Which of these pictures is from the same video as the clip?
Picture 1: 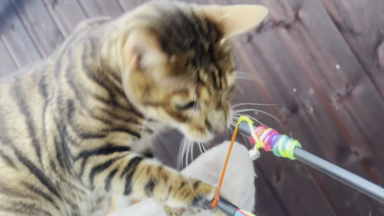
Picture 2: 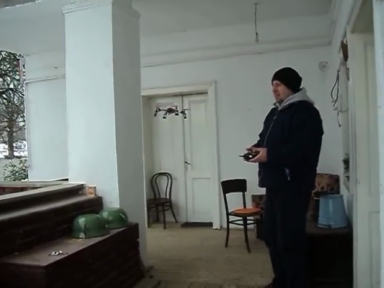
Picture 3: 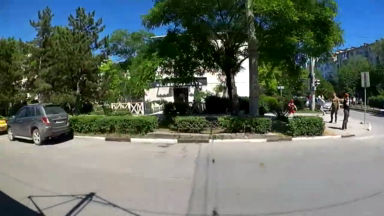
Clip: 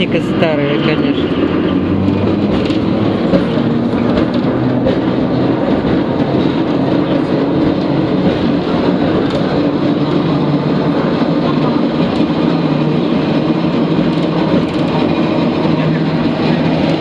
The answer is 3